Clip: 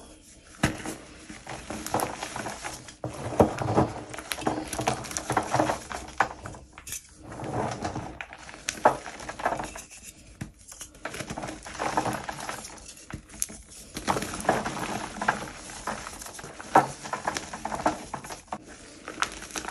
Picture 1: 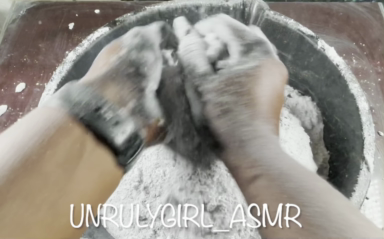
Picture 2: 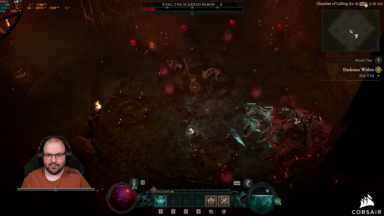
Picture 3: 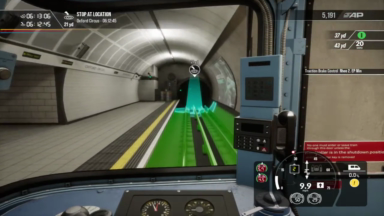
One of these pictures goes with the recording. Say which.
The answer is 1